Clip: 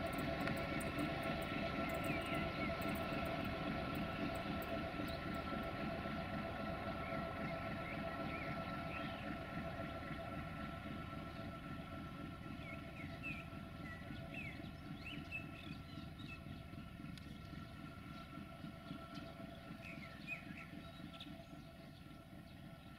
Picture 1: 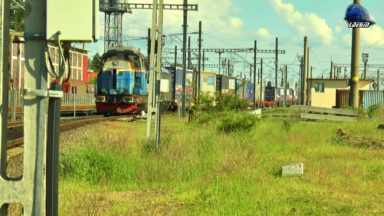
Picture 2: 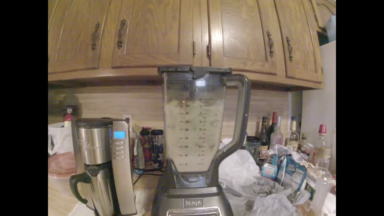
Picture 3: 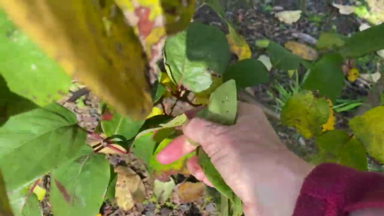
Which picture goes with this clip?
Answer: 1